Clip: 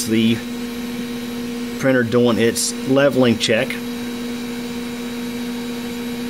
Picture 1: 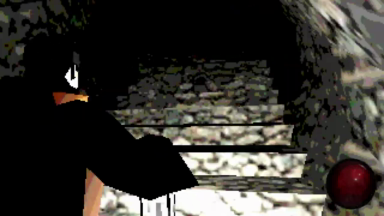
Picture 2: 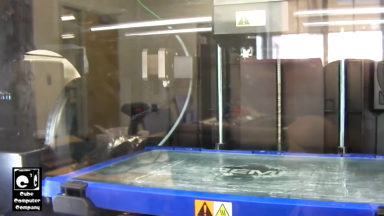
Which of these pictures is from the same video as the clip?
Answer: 2